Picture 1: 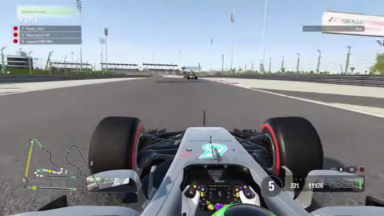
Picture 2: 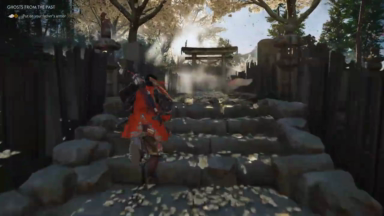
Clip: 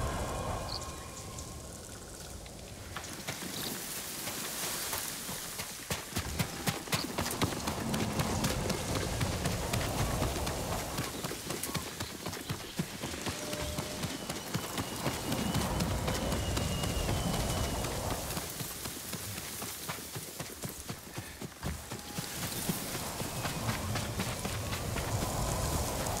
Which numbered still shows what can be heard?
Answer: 2